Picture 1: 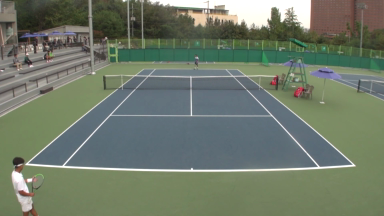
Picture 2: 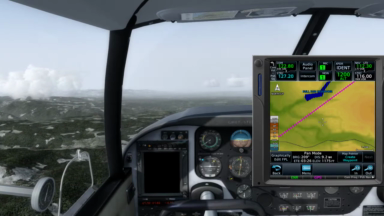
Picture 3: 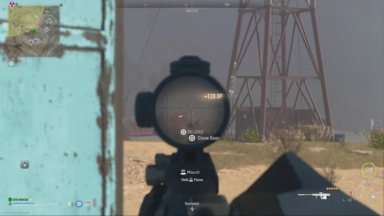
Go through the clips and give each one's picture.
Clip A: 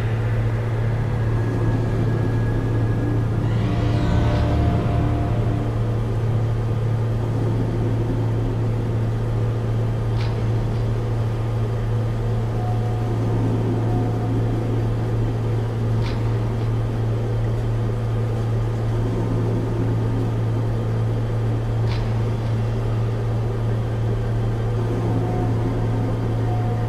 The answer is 2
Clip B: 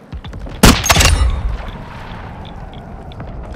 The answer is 3